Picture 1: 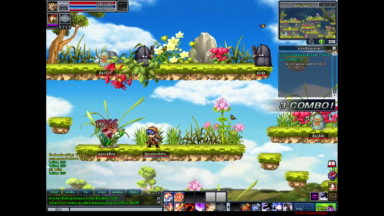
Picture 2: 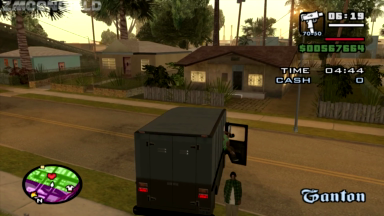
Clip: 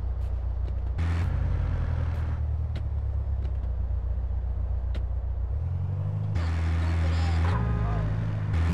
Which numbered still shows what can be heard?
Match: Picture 2